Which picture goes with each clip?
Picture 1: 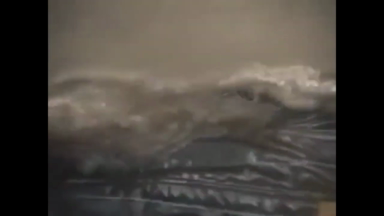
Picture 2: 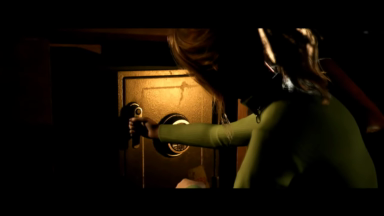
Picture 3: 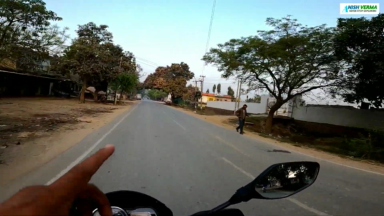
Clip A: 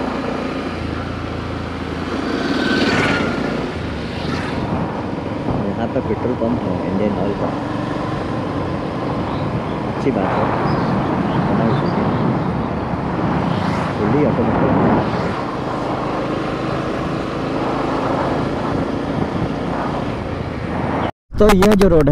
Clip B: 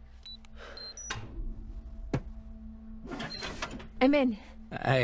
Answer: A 3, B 2